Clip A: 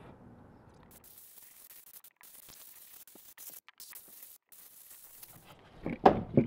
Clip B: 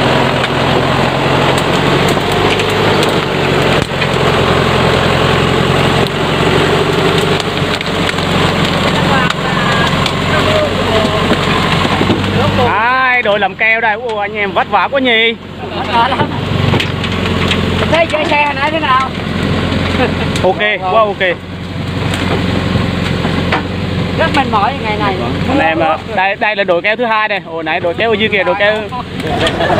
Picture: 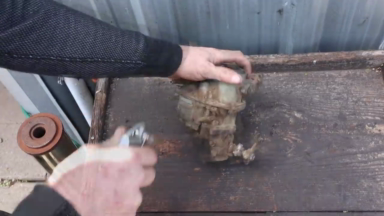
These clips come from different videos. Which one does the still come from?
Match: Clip A